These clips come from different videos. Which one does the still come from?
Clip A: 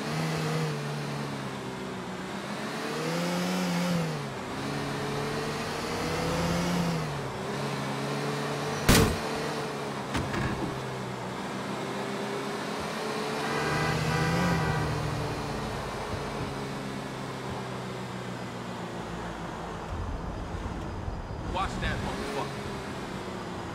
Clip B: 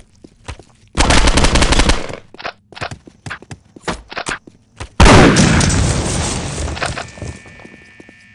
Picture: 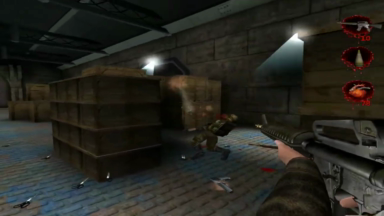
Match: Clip B